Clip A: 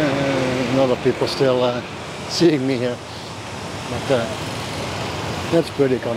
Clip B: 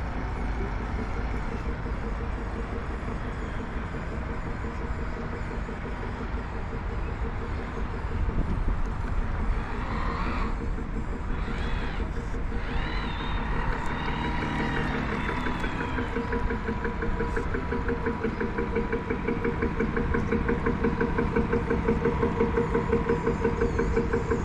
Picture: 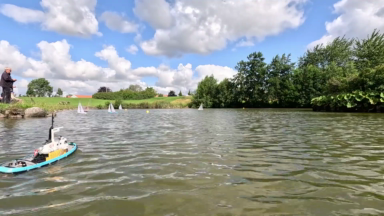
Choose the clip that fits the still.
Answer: B